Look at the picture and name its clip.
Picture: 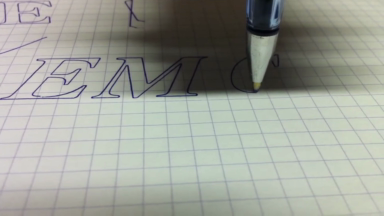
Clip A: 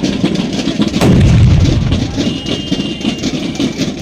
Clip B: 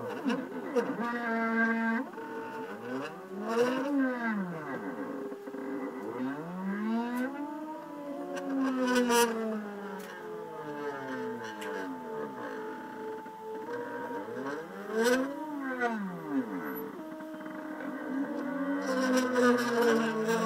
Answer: B